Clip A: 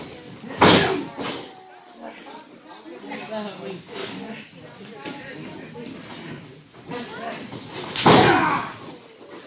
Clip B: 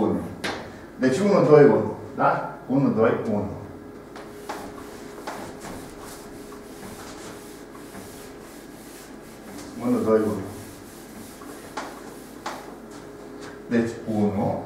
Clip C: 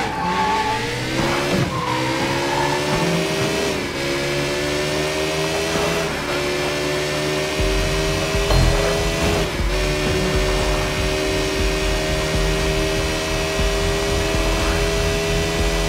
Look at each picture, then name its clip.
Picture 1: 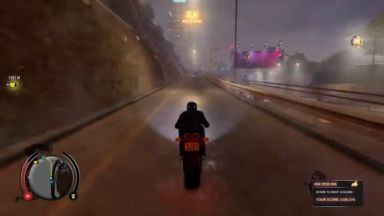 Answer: C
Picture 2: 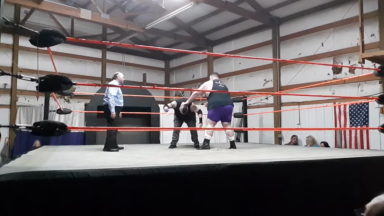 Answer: A